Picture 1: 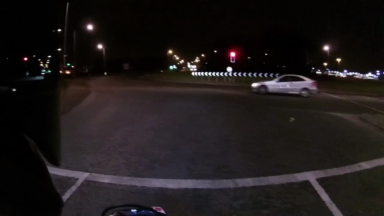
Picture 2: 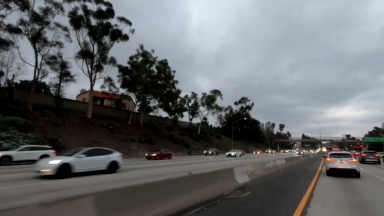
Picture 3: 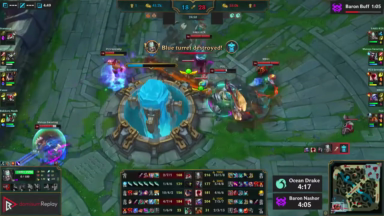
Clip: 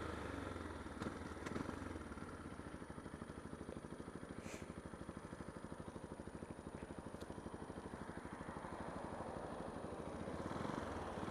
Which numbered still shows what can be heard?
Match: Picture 1